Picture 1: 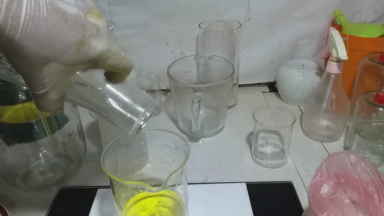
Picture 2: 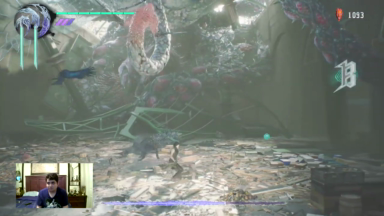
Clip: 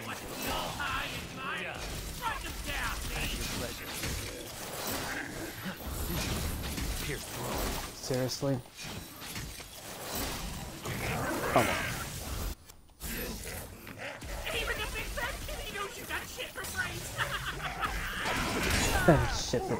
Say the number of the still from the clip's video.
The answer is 2